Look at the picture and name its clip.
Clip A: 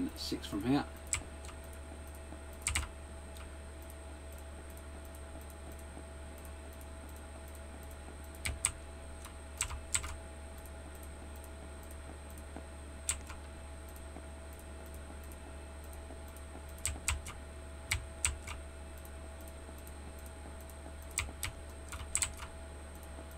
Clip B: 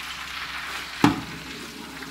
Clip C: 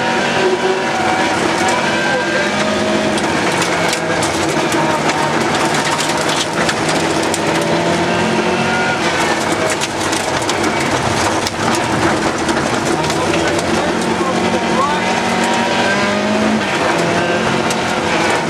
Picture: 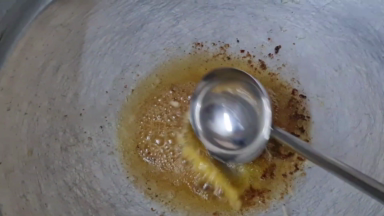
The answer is B